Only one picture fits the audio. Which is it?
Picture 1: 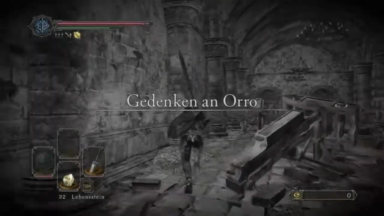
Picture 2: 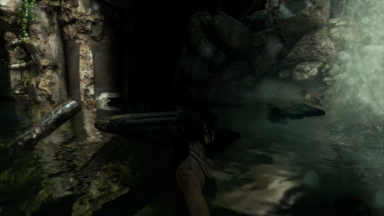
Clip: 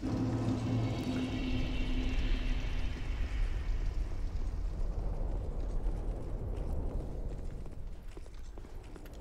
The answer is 1